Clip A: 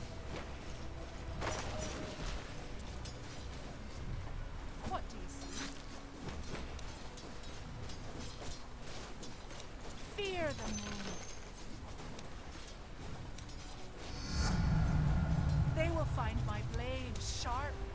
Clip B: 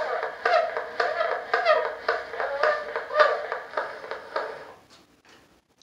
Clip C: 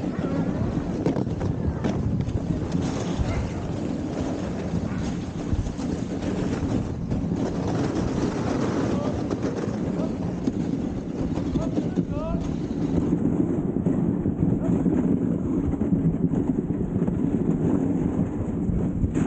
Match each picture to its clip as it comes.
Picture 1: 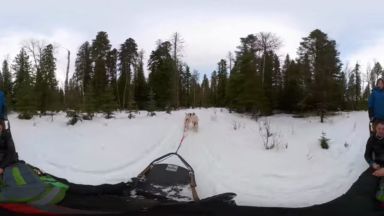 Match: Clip C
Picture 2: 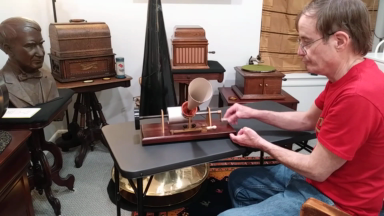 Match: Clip B